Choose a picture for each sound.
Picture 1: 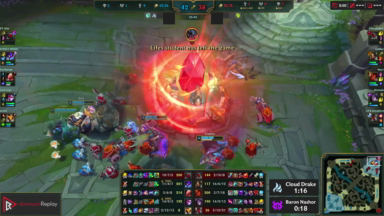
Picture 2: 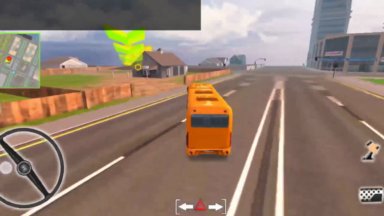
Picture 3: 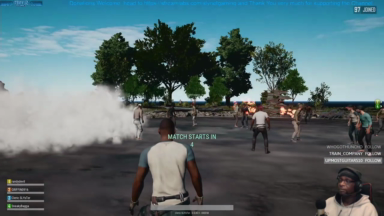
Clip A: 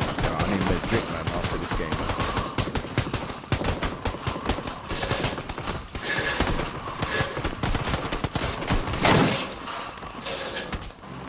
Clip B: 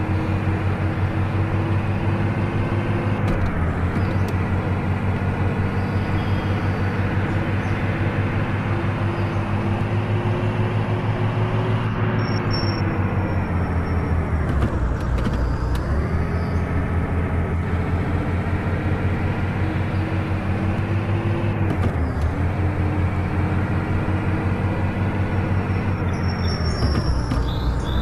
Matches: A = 3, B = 2